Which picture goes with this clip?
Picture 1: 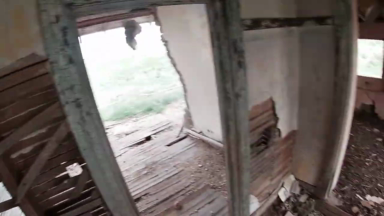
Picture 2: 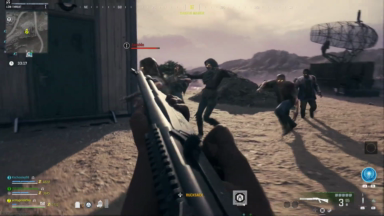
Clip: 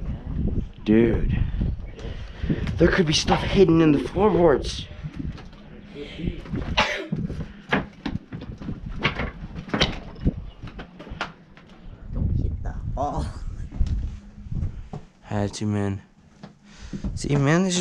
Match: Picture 1